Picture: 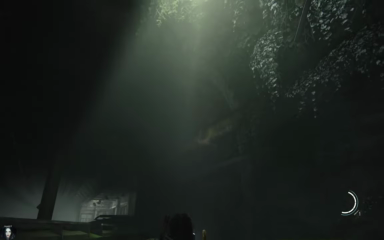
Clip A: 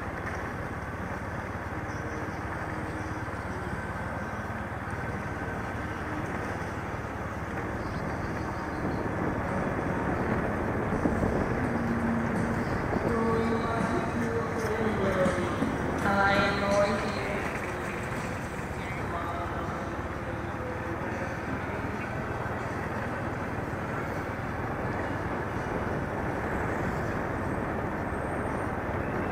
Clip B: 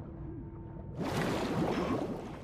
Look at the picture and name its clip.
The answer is B